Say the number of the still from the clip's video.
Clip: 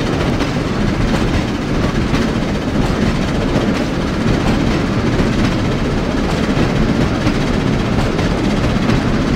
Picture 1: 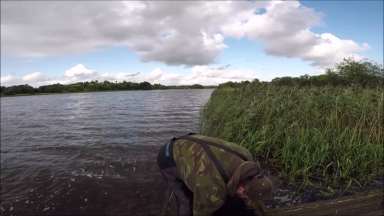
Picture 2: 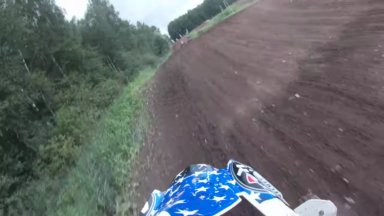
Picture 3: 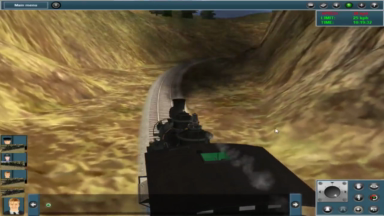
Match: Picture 3